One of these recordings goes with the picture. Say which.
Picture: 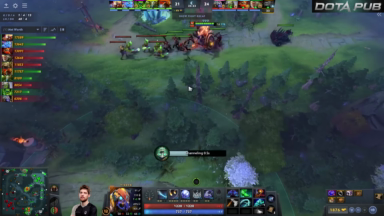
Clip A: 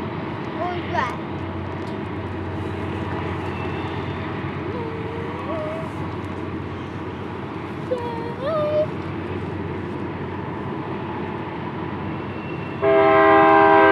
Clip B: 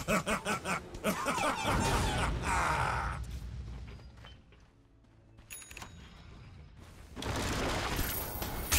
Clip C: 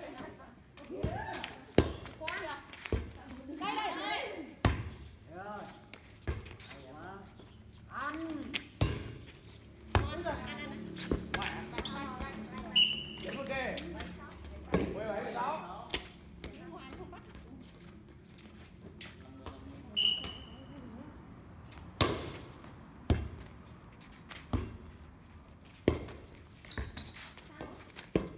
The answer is B